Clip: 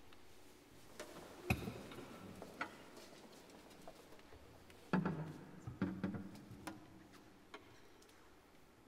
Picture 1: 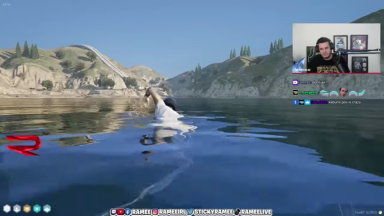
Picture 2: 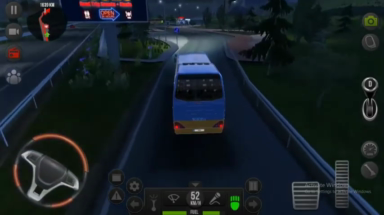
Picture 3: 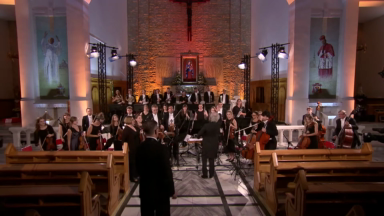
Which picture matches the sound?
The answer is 3